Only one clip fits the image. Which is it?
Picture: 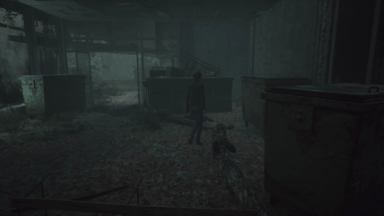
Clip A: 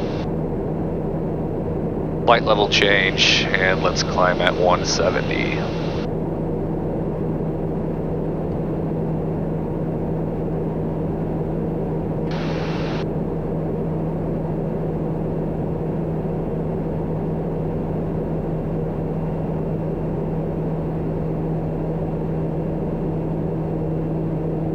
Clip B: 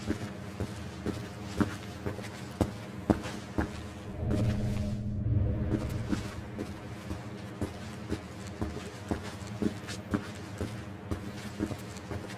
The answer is B